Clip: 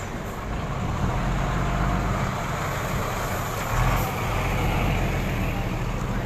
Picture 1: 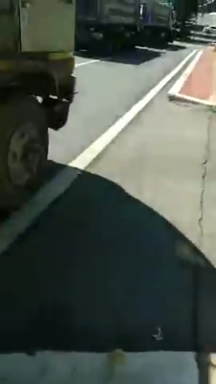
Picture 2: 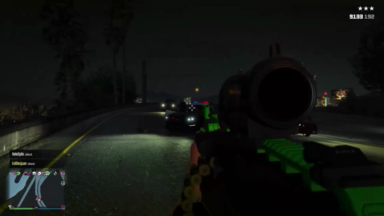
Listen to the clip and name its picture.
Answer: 1